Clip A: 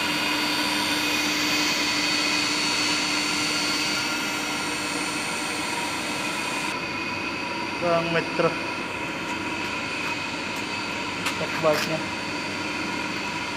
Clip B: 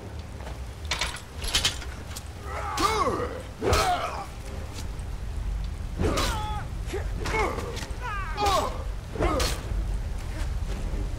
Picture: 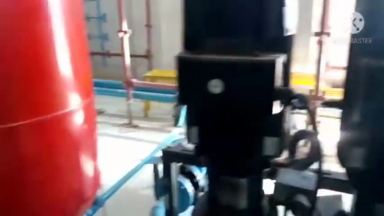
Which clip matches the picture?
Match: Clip A